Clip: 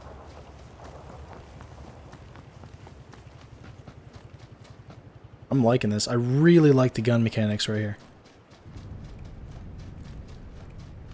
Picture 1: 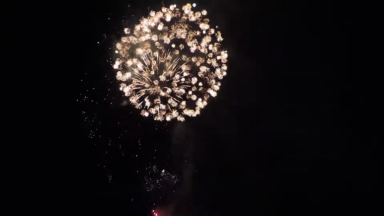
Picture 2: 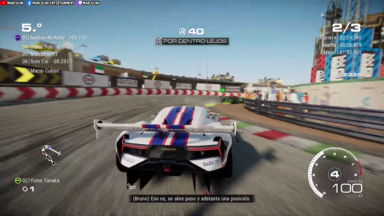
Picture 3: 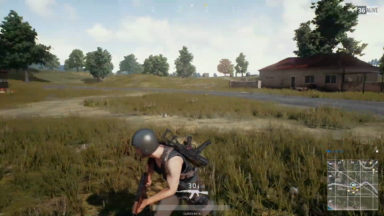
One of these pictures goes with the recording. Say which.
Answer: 3